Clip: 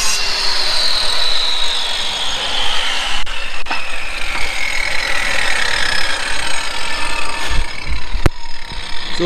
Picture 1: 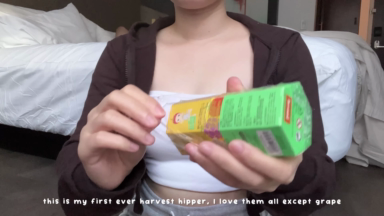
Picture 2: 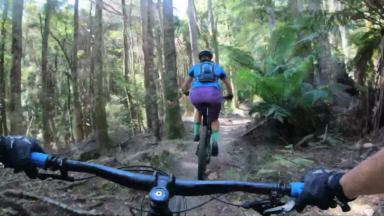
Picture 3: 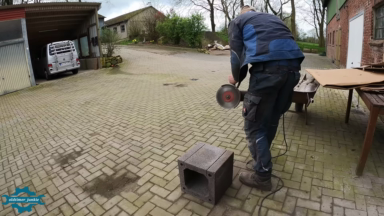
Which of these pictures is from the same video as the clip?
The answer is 3